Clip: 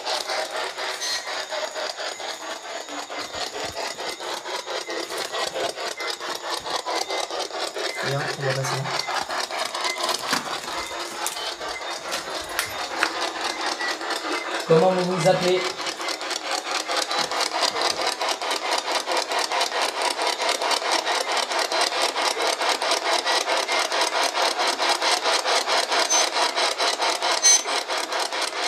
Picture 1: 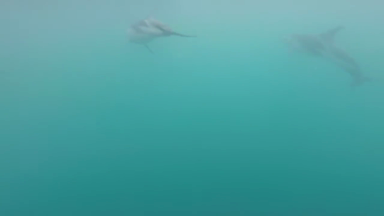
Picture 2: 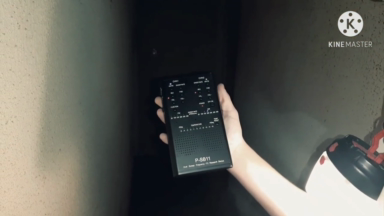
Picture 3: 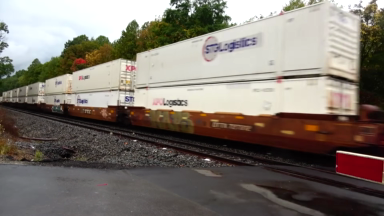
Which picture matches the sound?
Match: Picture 2